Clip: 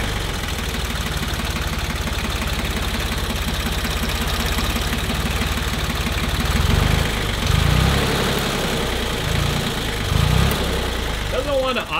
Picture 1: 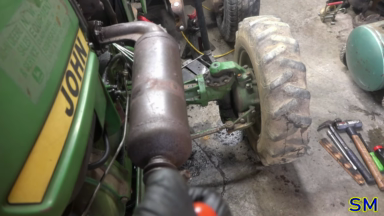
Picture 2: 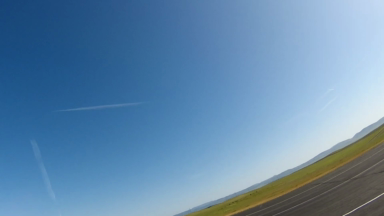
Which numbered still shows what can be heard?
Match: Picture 1